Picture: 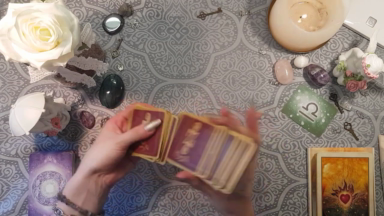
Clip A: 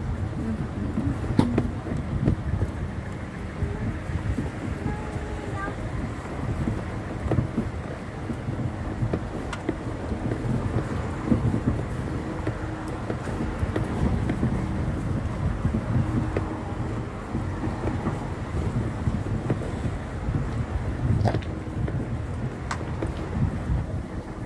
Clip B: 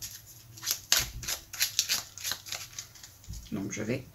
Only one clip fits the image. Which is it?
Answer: B